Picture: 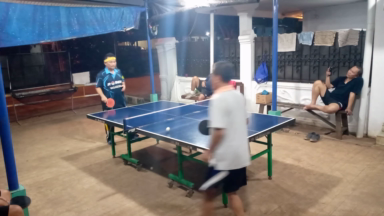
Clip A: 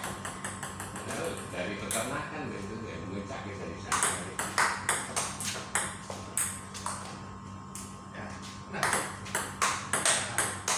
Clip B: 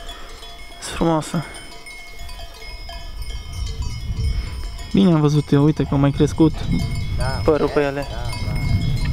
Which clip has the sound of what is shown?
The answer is A